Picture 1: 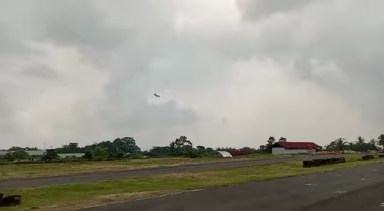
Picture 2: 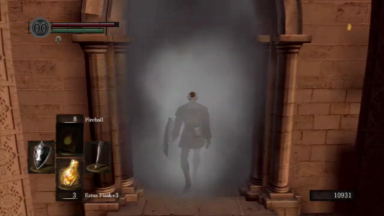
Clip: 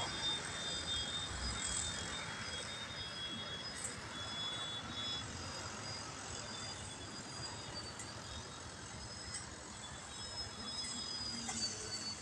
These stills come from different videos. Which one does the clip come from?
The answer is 1